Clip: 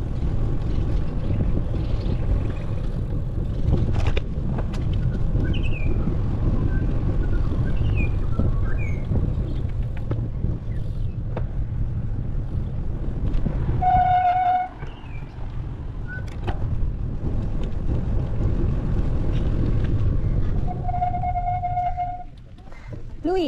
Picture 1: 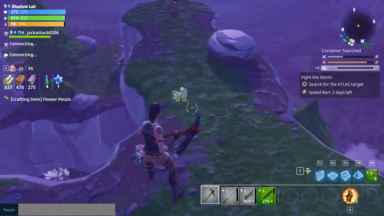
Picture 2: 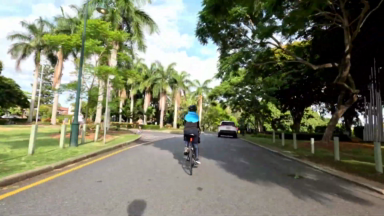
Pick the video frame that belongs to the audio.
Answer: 2